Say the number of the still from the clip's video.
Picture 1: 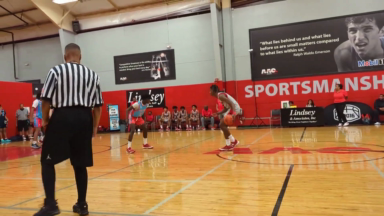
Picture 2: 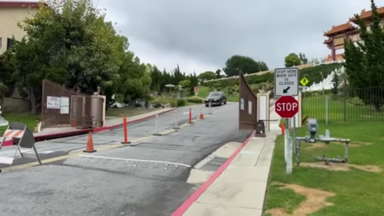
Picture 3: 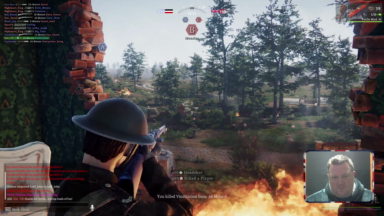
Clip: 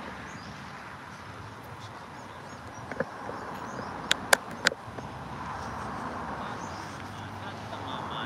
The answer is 2